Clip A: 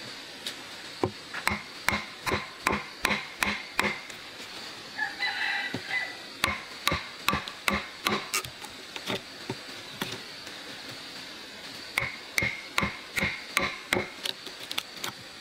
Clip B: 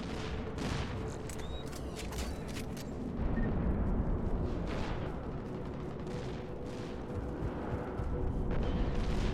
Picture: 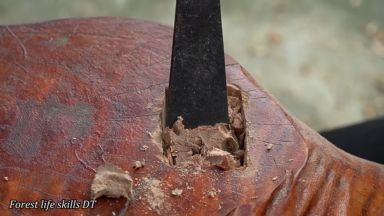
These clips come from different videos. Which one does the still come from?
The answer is A